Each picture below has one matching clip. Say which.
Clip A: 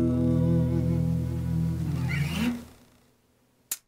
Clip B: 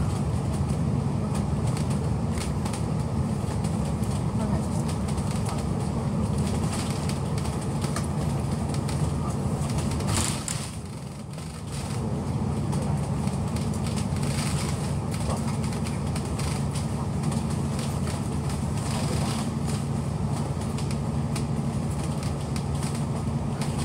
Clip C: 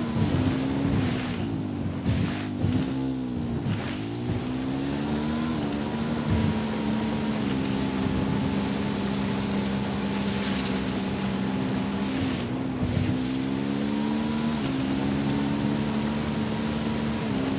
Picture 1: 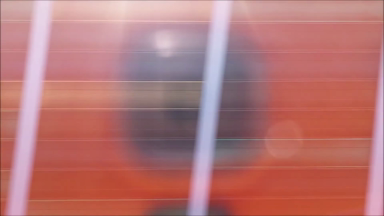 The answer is B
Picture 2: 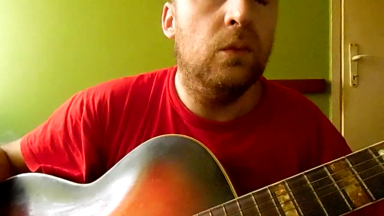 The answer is A